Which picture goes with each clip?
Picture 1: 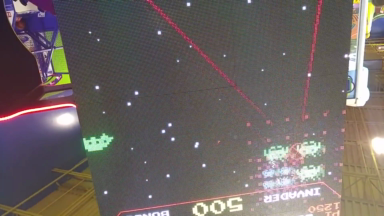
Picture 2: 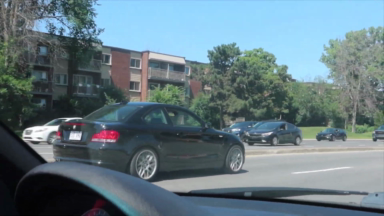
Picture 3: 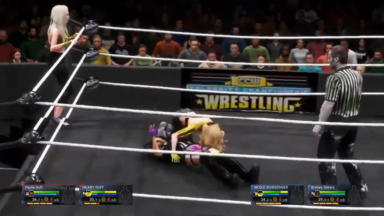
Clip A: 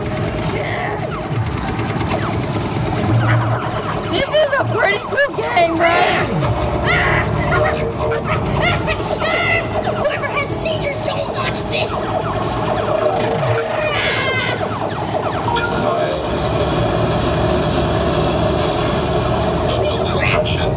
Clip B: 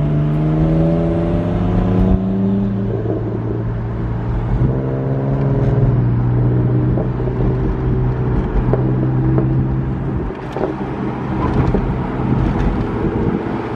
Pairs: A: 1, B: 2